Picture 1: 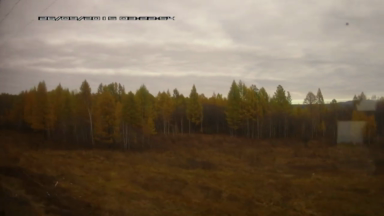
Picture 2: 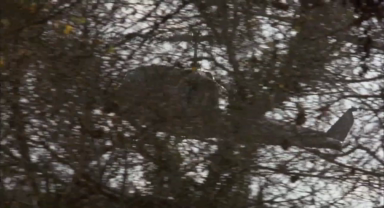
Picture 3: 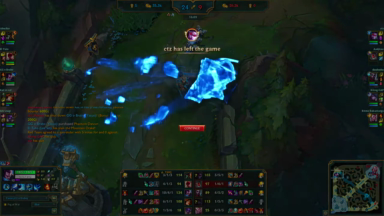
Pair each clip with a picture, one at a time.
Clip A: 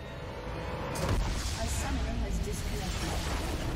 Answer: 3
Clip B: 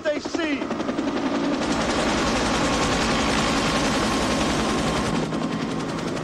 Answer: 2